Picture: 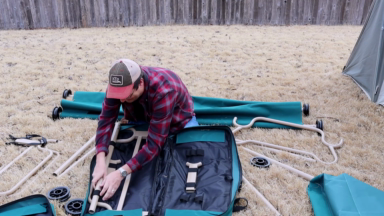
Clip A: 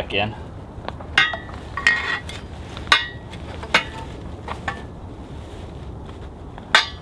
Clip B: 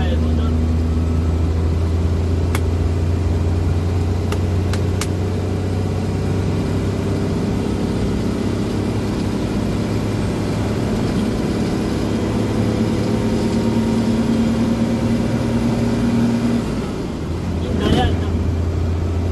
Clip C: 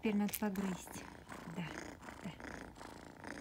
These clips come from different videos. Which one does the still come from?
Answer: A